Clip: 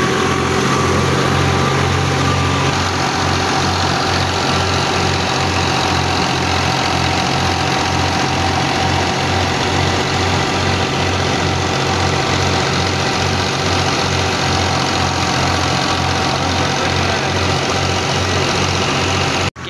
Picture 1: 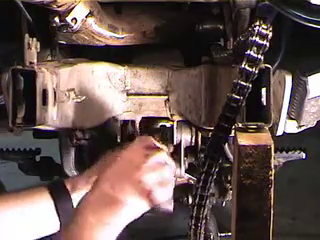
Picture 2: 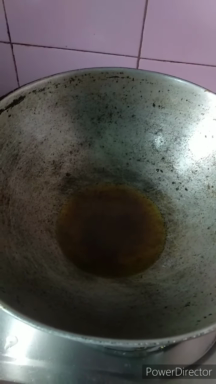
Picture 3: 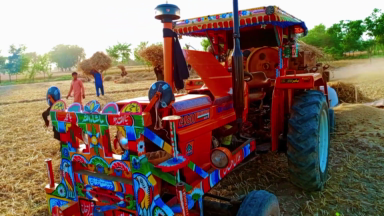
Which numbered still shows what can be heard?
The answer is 3